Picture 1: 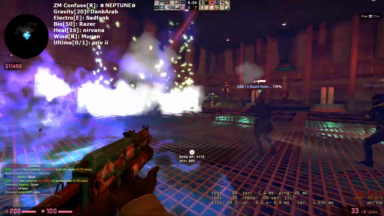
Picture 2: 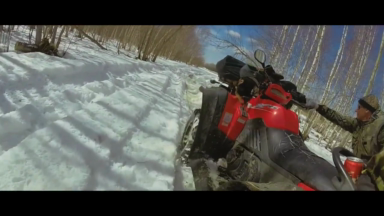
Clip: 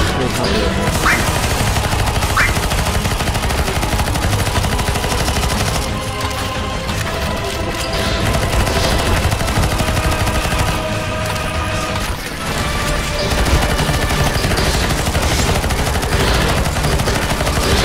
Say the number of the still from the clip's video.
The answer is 1